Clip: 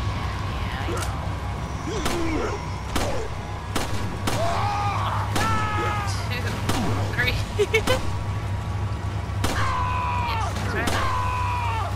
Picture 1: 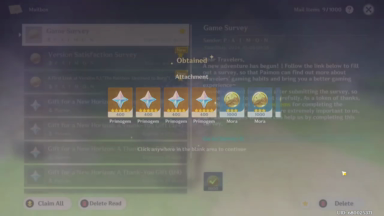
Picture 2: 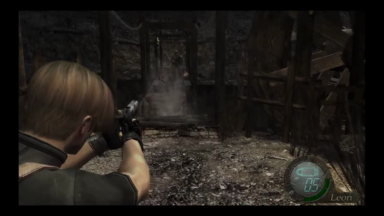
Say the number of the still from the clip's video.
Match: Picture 2